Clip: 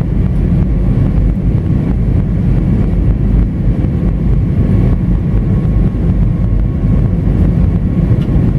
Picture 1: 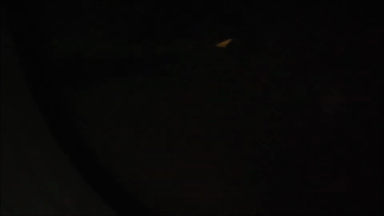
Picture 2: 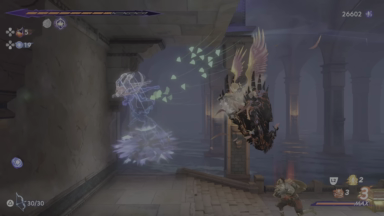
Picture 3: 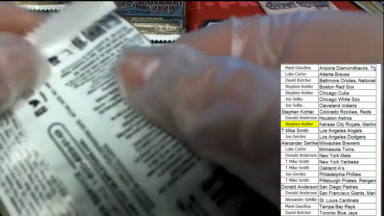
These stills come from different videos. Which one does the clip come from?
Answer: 1